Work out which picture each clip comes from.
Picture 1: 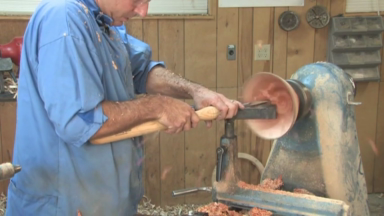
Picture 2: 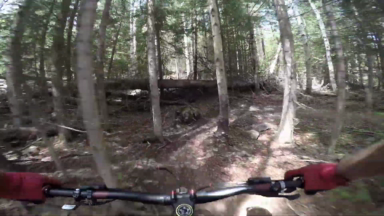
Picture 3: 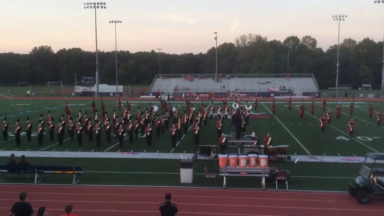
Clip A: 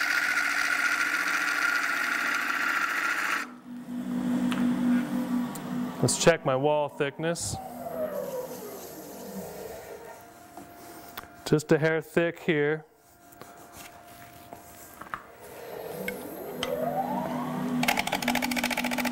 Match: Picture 1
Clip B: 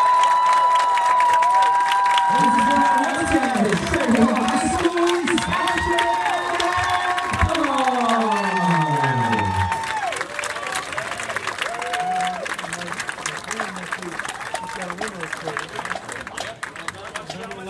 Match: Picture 3